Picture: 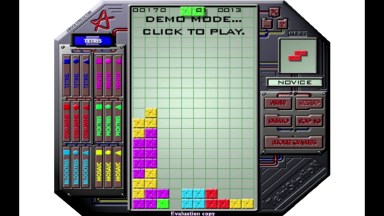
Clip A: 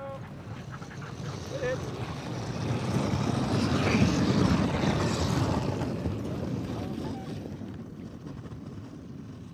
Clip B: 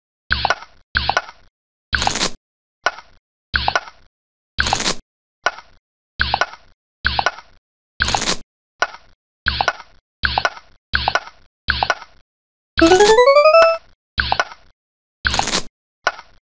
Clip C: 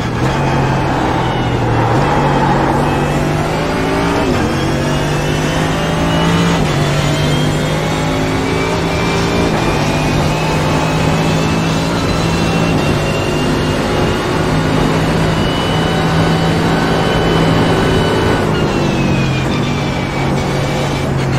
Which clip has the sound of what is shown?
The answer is B